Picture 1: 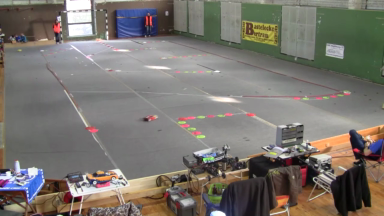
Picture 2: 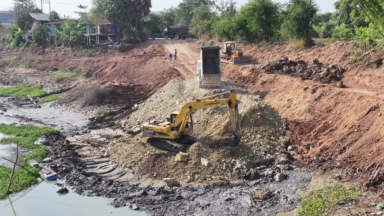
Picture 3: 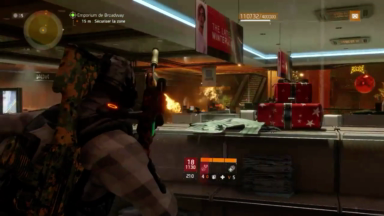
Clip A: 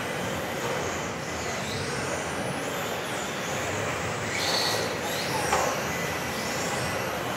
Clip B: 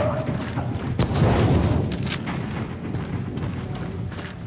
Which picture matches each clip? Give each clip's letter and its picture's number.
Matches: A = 1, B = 3